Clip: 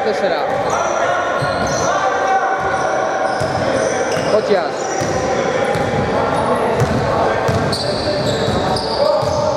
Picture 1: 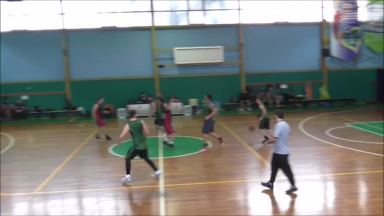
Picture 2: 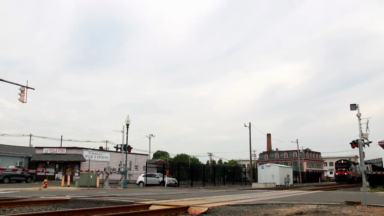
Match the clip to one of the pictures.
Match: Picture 1